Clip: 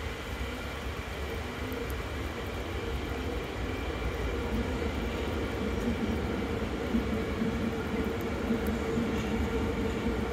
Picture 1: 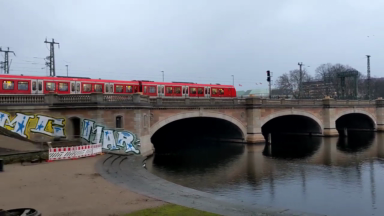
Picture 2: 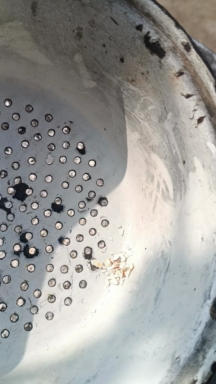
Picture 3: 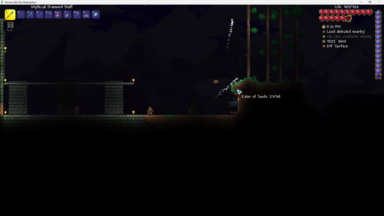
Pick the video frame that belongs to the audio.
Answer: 1